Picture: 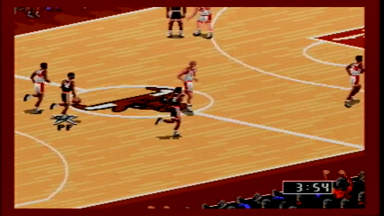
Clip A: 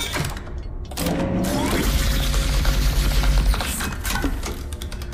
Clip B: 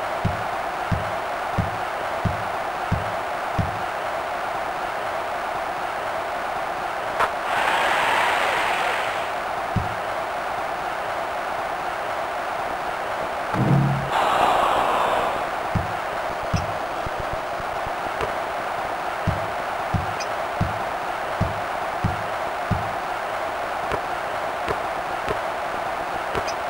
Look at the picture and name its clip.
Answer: B